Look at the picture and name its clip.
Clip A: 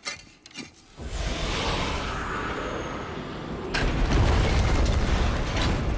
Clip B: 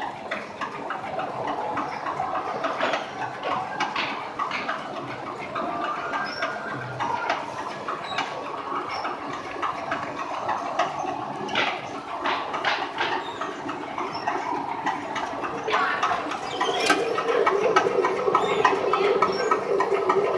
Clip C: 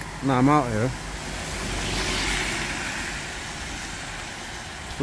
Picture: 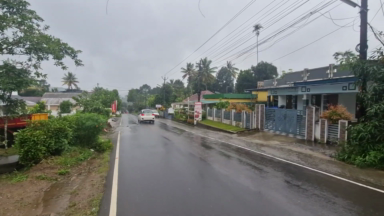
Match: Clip C